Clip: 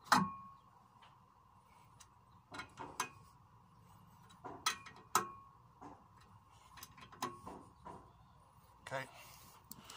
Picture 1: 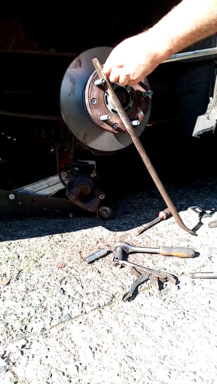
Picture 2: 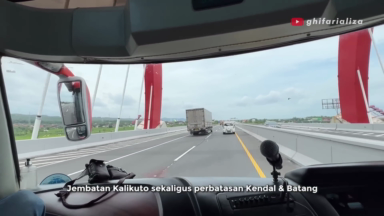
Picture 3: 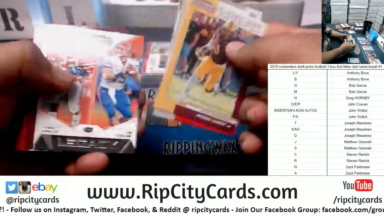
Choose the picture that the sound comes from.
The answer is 1